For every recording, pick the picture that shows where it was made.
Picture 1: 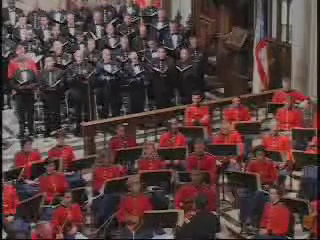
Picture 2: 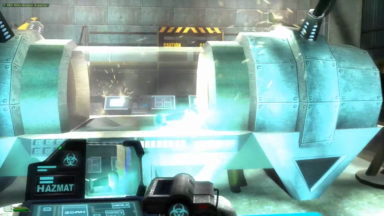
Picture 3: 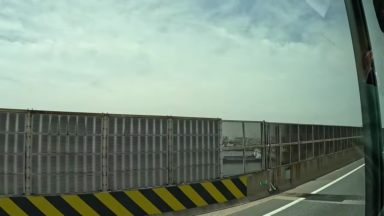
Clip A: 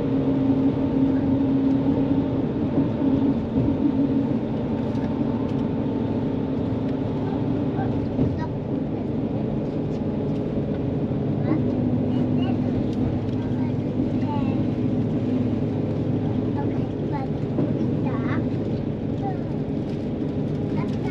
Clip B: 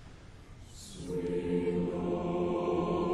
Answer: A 3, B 1